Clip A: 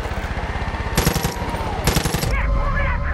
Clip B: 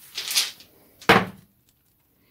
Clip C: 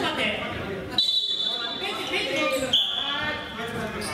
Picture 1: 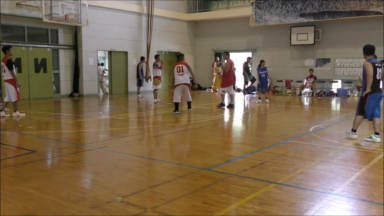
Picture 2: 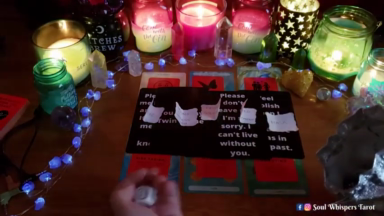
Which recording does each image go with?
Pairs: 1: C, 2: B